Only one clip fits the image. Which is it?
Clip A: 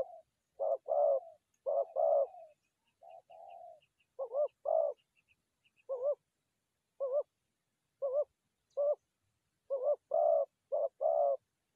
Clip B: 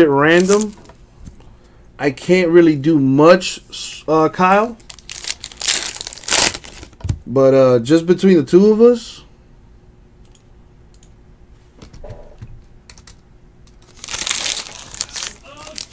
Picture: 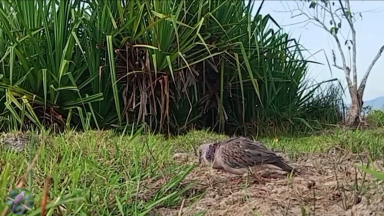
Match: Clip A